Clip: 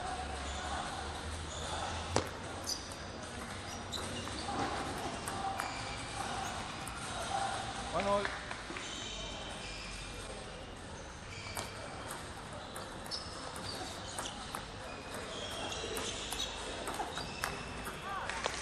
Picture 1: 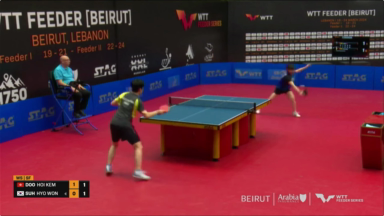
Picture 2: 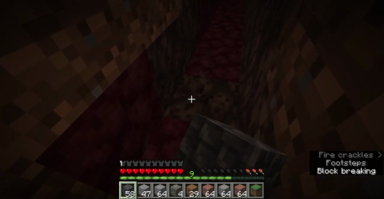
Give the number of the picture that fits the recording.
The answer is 1